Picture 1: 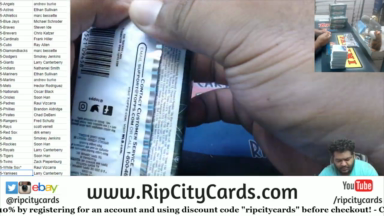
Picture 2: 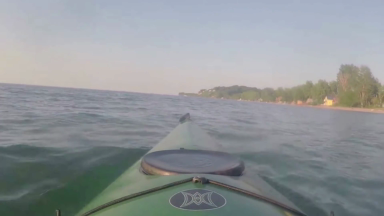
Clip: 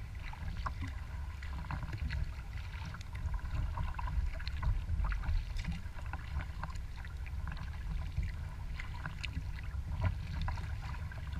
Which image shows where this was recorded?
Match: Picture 2